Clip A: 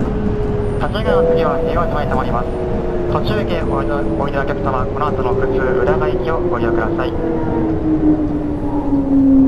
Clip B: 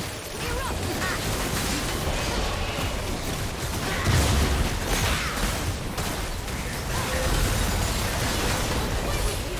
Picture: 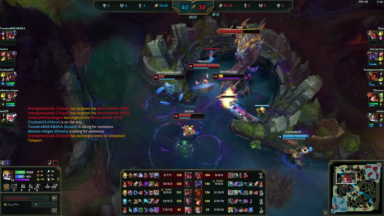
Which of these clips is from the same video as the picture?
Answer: B